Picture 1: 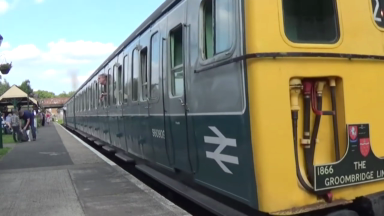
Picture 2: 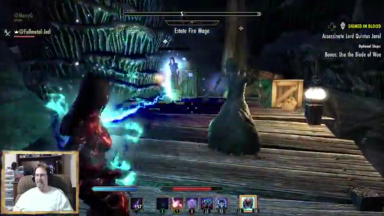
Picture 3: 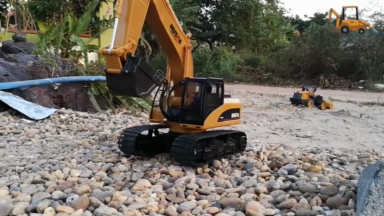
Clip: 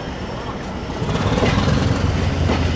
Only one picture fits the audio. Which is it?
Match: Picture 1